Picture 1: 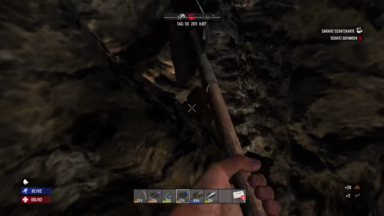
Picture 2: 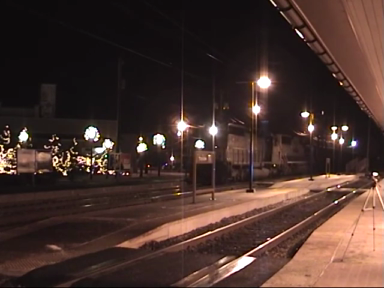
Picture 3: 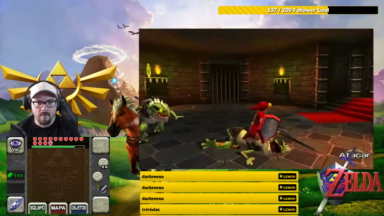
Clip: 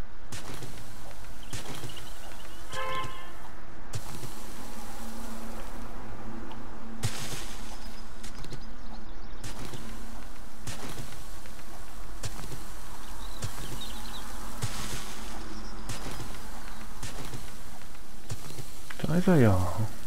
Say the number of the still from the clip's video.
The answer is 1